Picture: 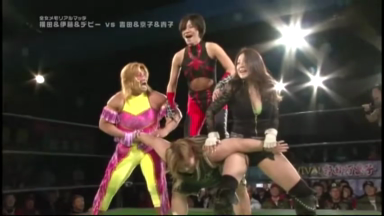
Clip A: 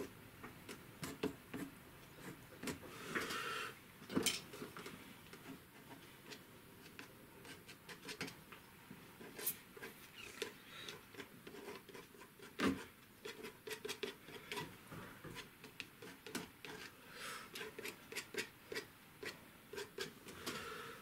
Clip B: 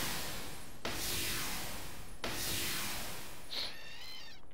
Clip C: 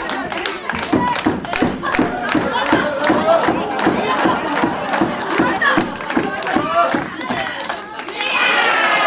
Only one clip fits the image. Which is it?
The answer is C